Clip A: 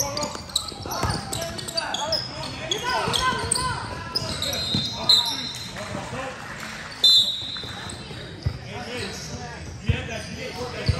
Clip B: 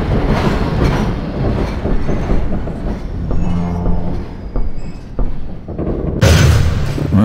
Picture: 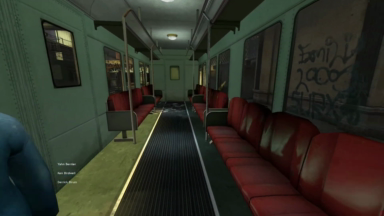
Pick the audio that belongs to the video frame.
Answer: B